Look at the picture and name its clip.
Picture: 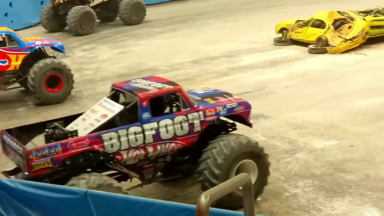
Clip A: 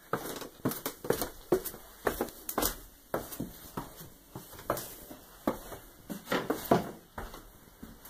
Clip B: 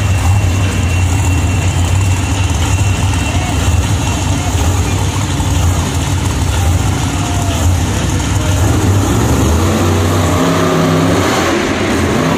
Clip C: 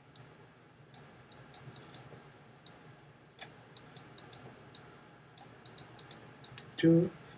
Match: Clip B